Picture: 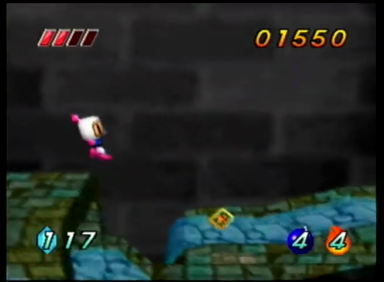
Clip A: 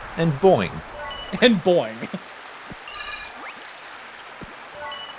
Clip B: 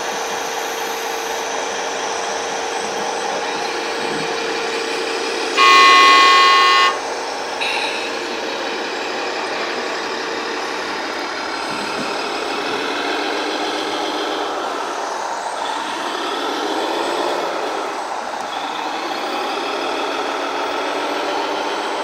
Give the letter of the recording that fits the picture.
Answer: A